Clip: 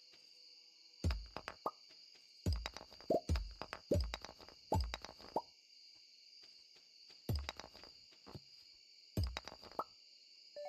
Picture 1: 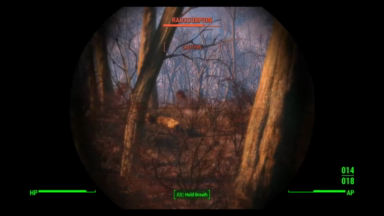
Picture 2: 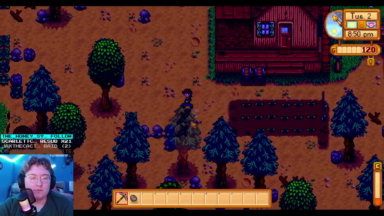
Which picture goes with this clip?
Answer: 2